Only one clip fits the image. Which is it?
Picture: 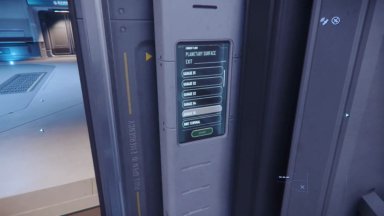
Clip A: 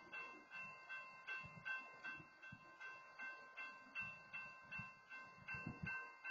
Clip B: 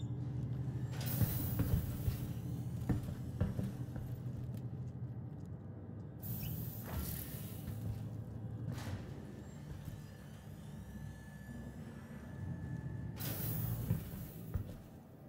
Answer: B